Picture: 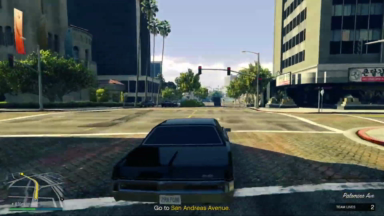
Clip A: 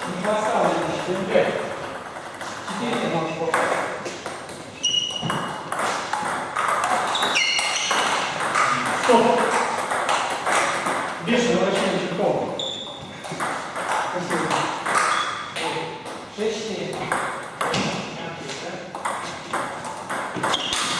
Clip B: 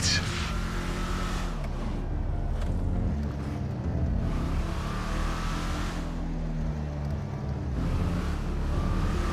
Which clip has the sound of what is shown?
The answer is B